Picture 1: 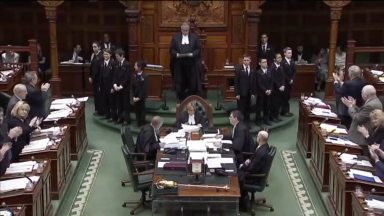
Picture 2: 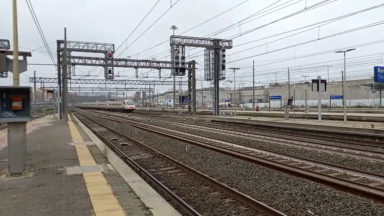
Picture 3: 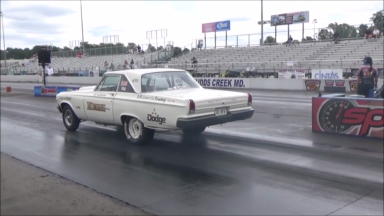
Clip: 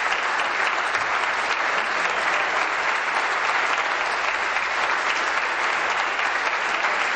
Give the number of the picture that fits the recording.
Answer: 1